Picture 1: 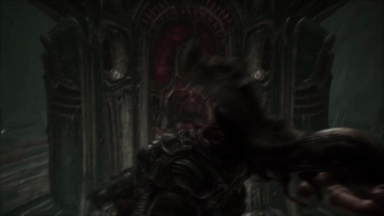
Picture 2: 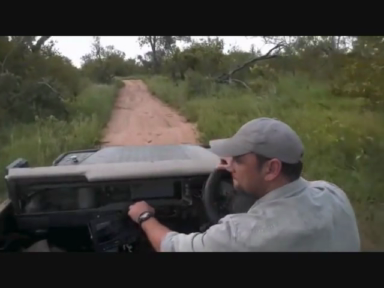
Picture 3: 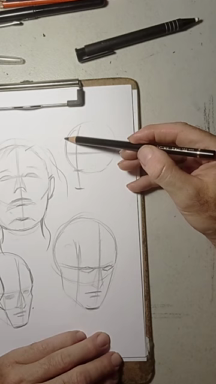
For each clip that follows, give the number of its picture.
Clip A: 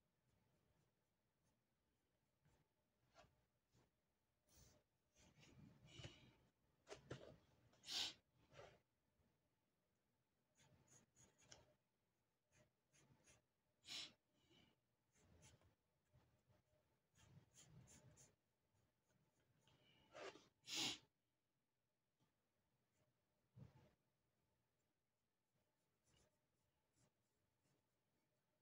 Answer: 3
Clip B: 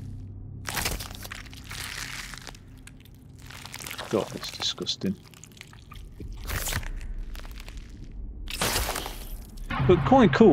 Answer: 1